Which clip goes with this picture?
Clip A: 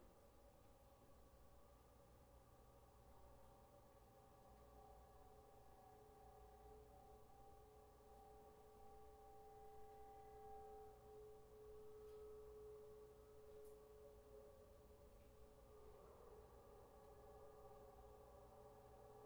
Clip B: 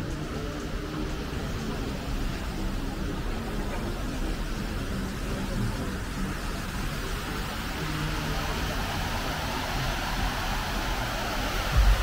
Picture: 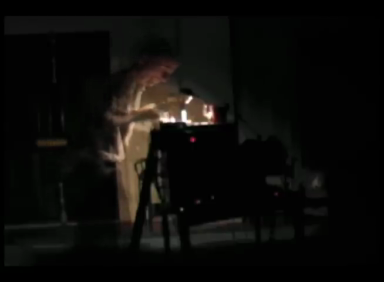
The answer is A